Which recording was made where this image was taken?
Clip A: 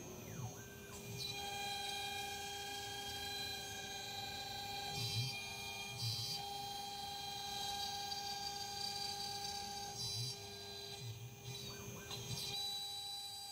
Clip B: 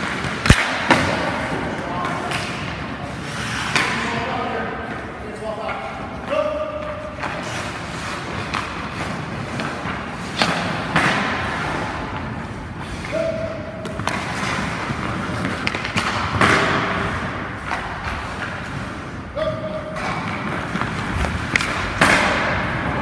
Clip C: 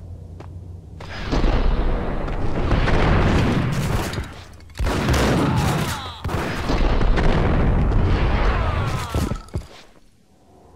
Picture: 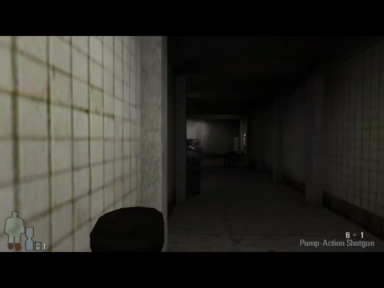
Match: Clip C